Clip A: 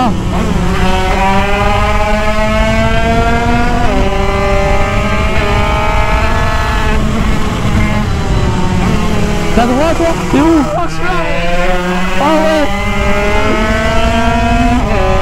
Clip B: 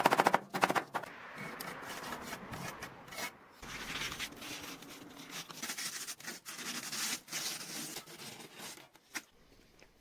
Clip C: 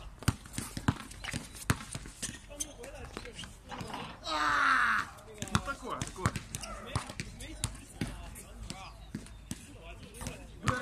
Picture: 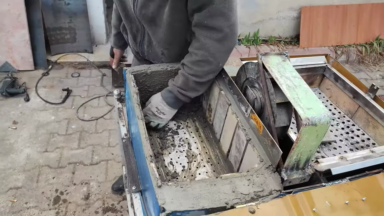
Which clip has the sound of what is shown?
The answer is B